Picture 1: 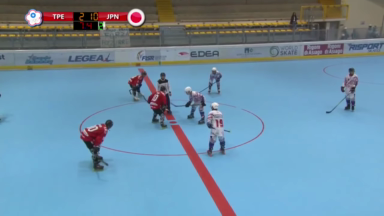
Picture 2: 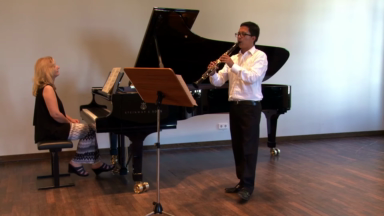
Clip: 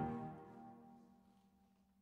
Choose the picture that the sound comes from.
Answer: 2